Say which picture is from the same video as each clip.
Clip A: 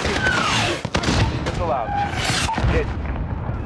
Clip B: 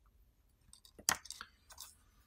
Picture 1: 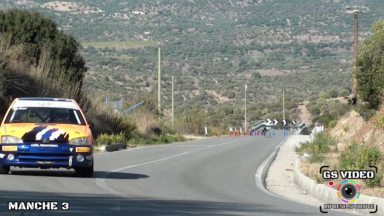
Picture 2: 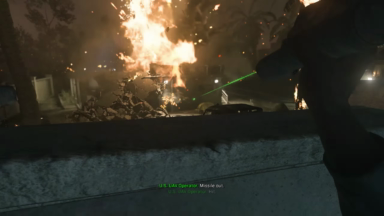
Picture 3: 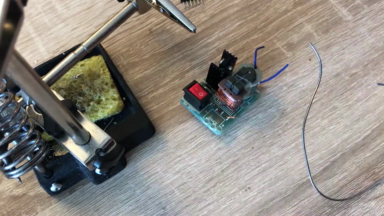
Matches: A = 2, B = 3